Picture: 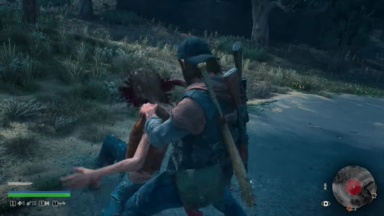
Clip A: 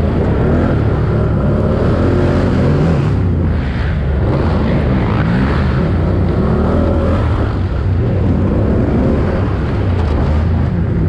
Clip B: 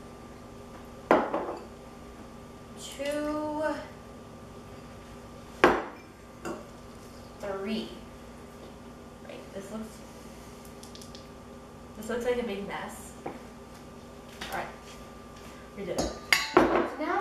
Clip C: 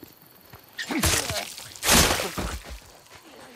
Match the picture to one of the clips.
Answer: C